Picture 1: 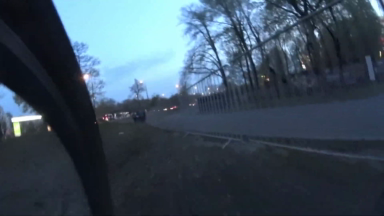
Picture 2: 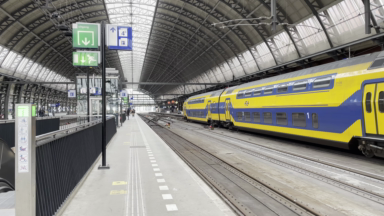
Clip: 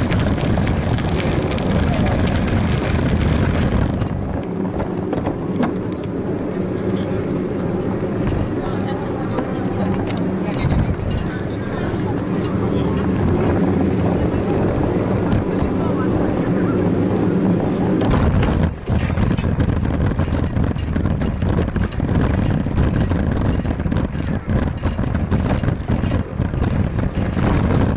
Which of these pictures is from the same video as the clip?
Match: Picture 1